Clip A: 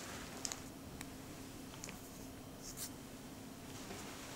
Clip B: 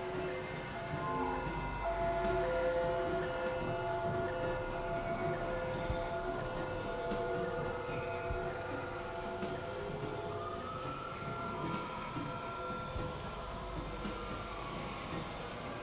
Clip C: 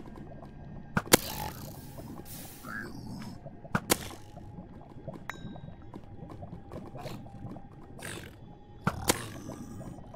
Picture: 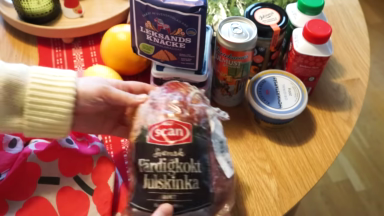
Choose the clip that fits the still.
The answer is A